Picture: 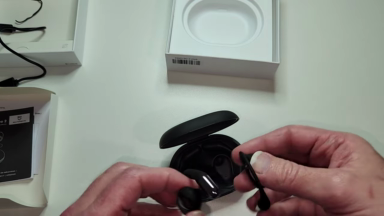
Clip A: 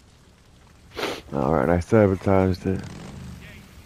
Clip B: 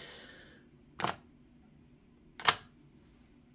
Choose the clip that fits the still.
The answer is B